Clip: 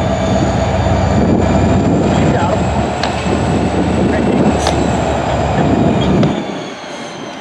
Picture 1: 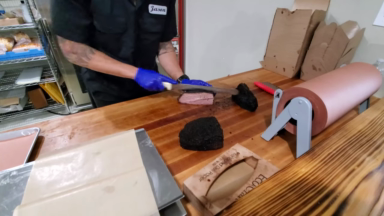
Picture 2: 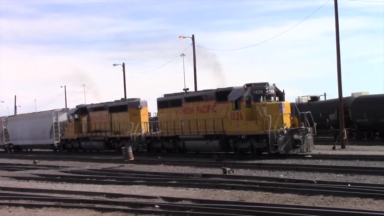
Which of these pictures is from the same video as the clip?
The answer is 2